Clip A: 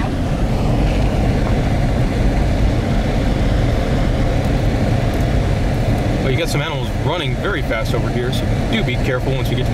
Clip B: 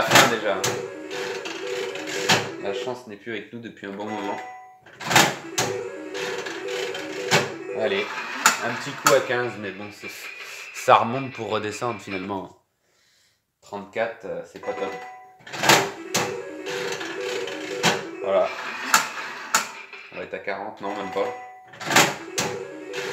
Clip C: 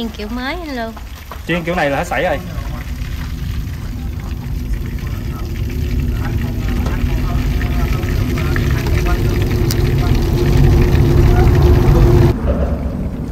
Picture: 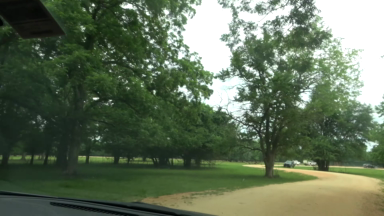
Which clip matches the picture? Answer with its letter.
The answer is A